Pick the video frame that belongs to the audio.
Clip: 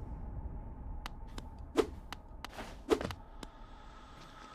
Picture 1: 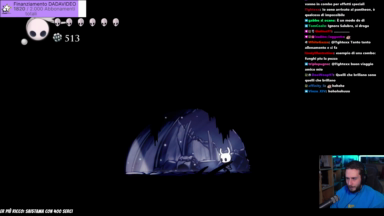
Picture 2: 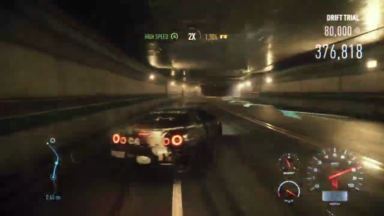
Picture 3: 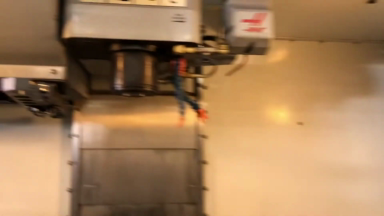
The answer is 1